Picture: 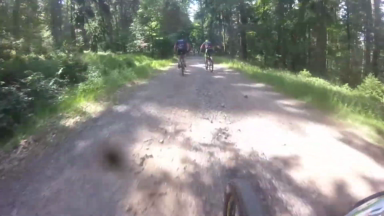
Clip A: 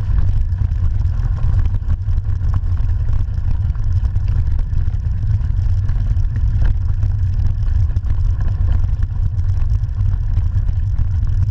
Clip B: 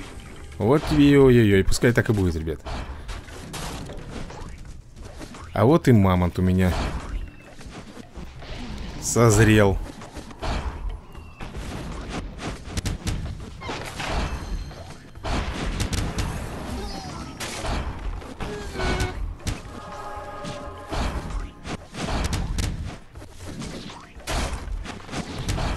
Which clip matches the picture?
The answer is A